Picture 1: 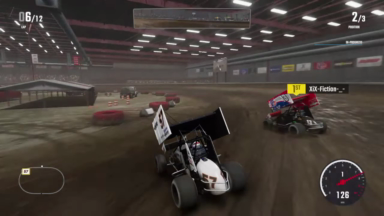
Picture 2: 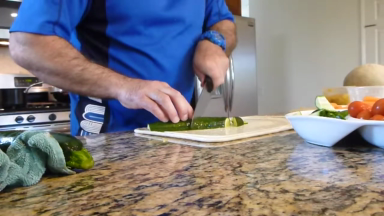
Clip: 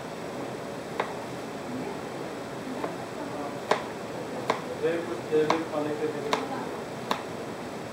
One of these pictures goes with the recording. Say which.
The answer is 2